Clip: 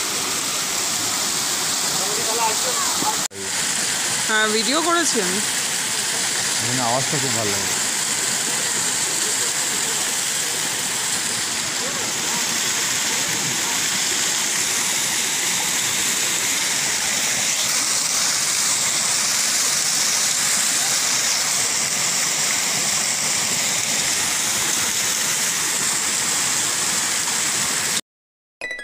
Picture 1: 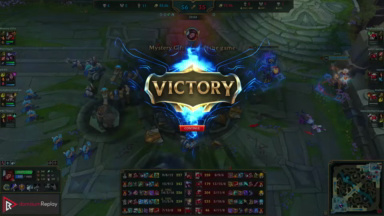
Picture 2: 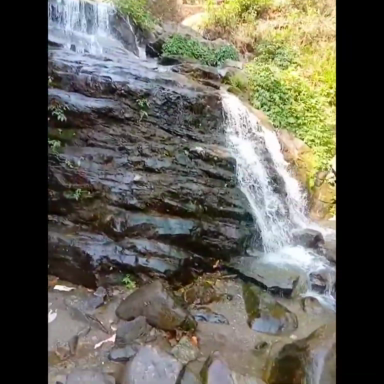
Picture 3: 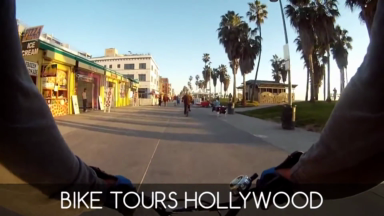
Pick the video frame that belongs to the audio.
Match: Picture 2